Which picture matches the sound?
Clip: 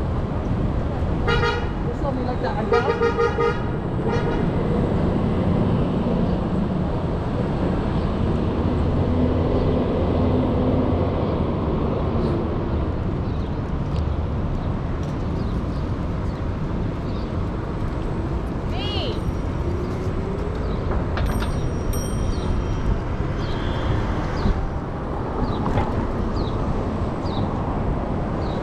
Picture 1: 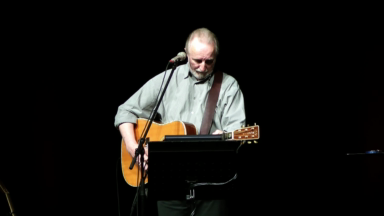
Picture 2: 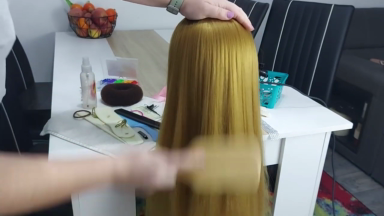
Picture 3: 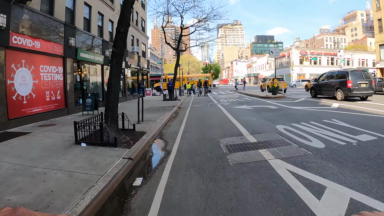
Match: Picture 3